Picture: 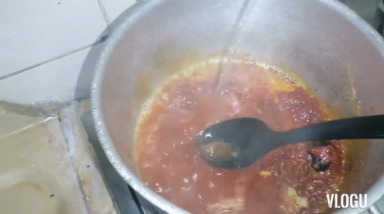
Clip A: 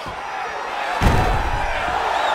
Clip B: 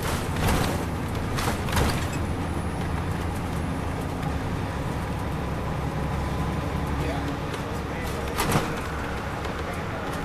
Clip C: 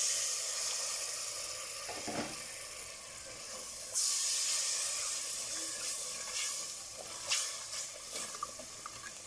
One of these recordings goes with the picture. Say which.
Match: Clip C